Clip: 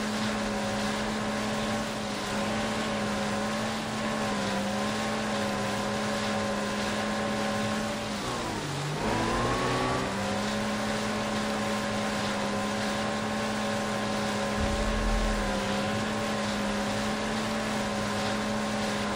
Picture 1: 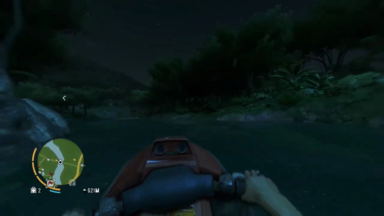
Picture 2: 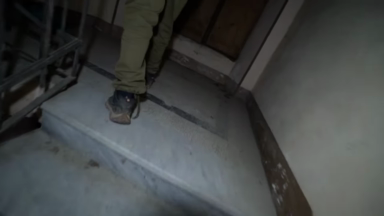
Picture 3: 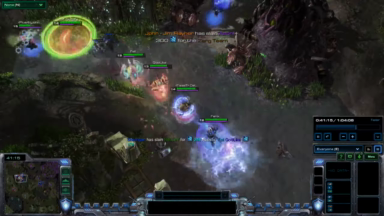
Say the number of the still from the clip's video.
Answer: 1